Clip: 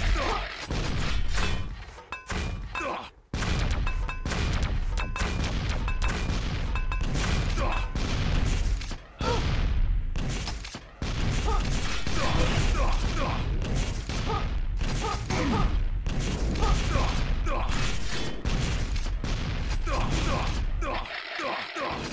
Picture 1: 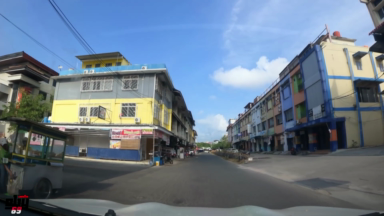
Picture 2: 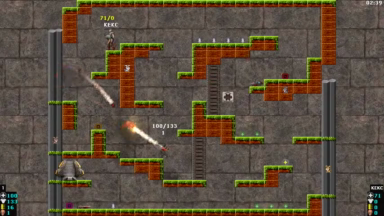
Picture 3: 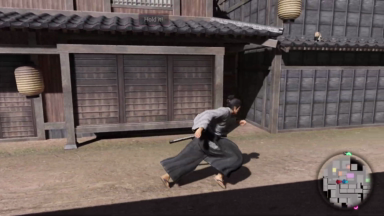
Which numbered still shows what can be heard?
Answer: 2